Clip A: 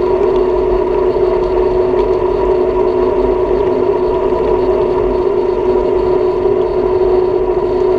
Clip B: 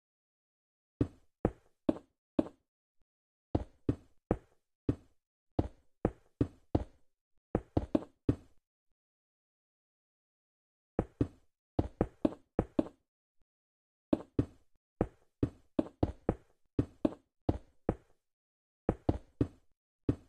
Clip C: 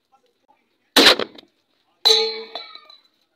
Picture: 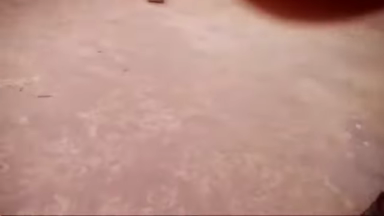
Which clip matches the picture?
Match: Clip C